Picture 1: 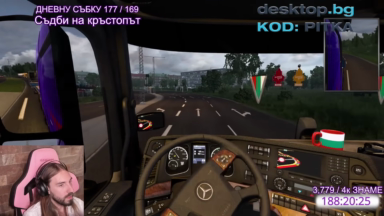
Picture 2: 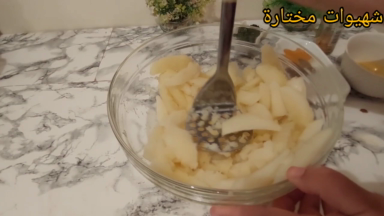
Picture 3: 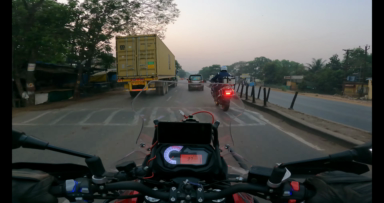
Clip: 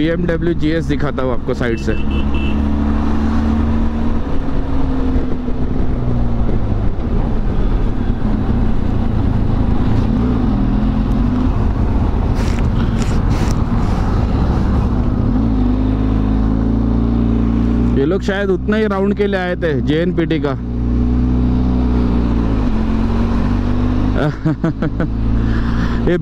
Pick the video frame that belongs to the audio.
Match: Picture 3